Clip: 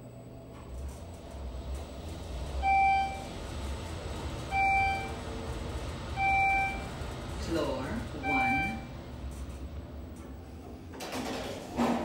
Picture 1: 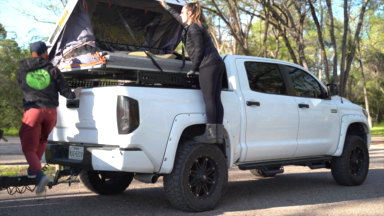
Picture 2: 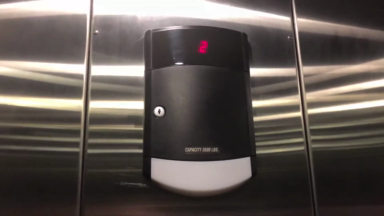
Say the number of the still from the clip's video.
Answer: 2